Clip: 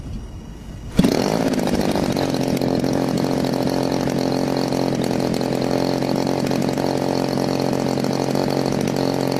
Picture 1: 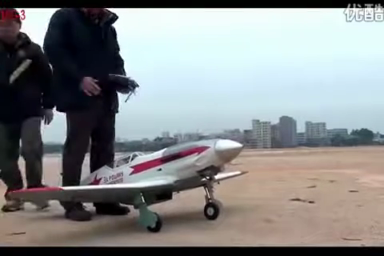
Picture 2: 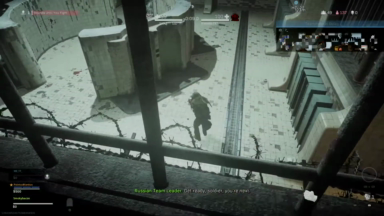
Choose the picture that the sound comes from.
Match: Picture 1